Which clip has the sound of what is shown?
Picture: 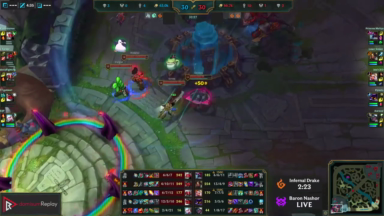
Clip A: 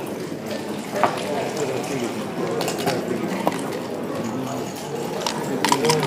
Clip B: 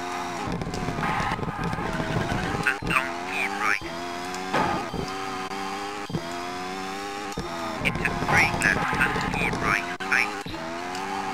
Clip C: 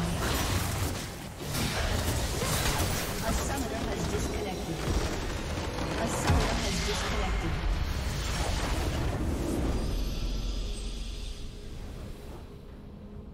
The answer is C